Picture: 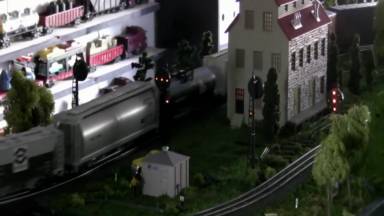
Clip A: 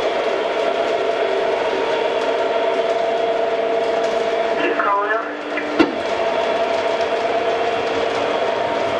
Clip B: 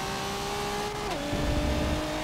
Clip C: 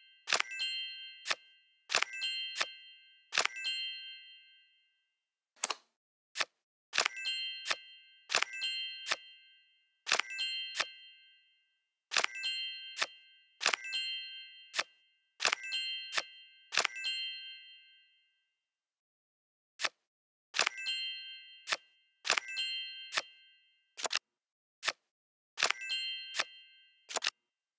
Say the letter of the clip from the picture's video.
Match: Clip A